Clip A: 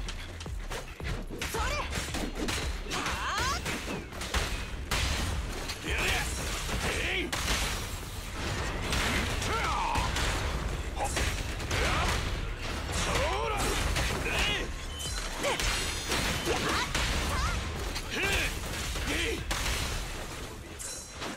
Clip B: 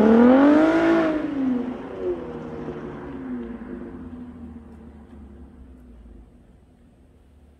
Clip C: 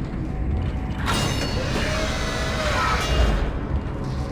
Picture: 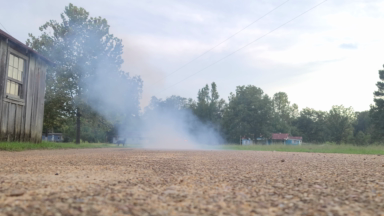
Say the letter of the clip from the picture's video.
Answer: B